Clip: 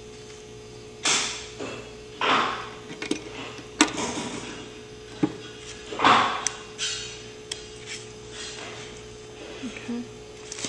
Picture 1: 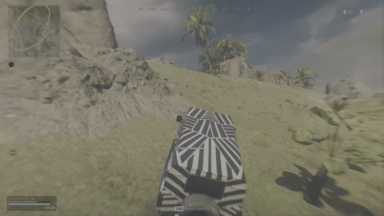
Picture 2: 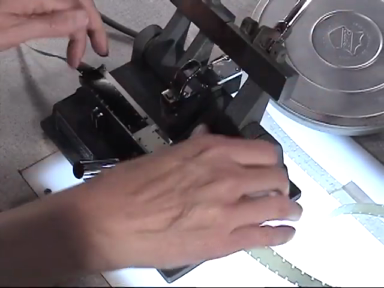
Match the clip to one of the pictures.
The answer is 2